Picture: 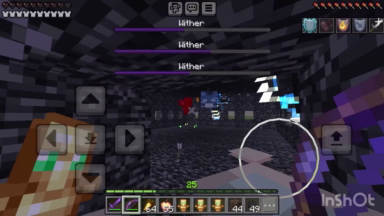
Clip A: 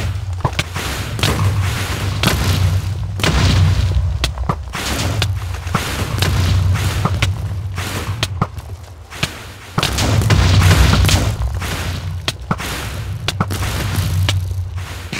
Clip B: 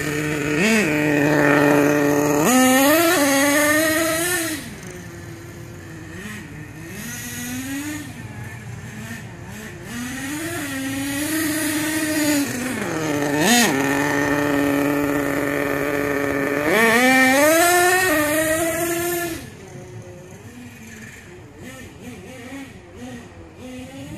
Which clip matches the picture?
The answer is A